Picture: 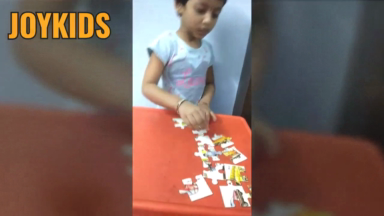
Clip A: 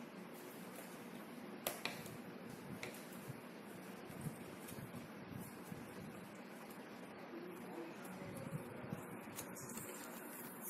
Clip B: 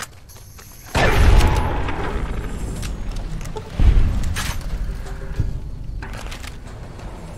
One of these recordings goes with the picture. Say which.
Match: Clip A